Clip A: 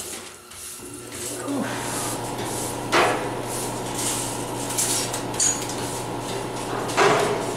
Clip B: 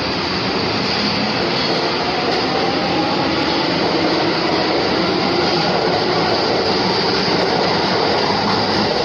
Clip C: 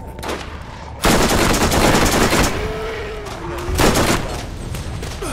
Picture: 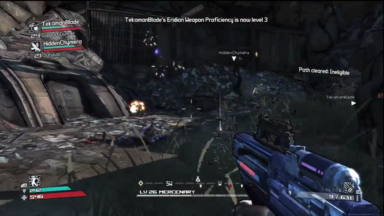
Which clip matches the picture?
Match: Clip C